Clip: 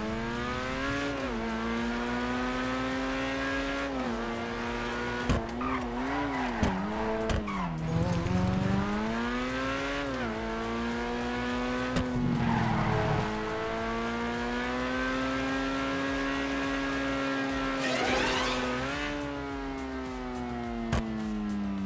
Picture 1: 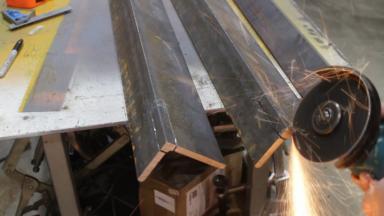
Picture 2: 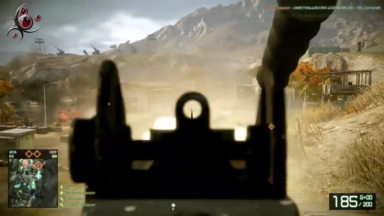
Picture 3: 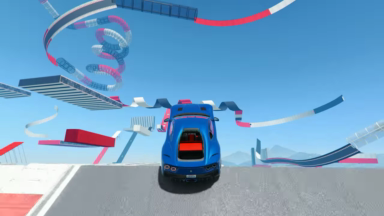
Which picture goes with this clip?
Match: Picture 3